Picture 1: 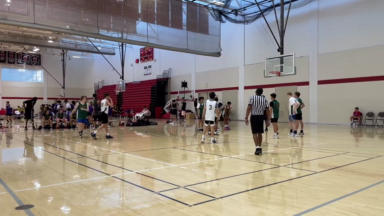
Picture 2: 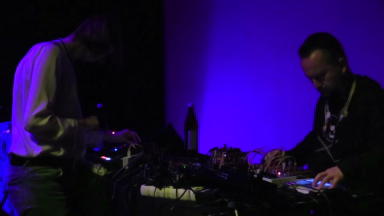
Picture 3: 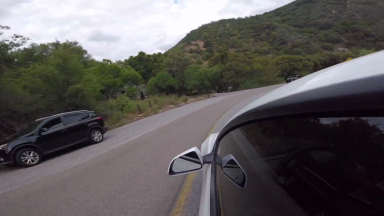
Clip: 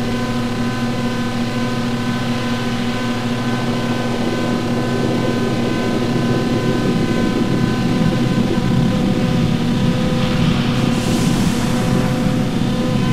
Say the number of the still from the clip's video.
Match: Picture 2